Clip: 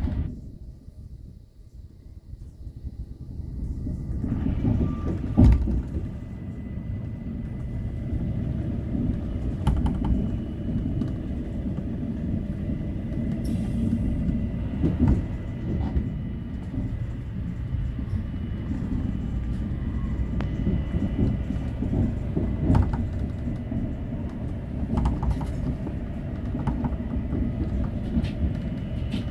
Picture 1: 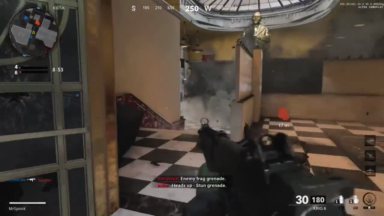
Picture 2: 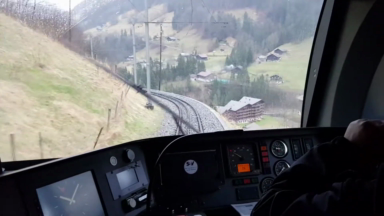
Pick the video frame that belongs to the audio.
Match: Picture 2